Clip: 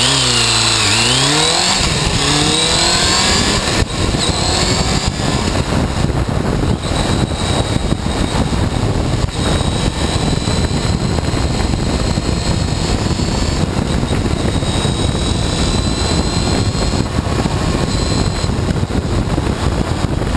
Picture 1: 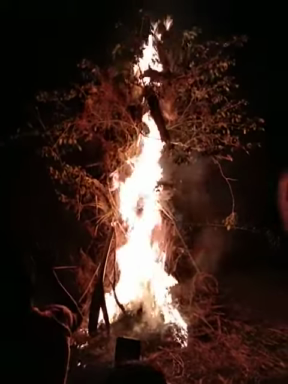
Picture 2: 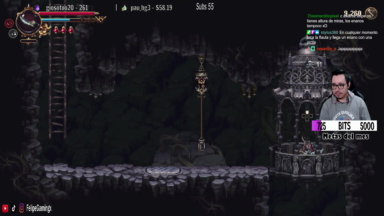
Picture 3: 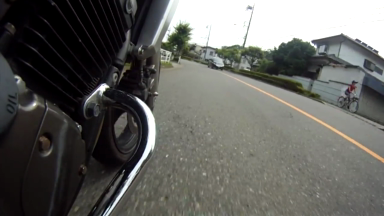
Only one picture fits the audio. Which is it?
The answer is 3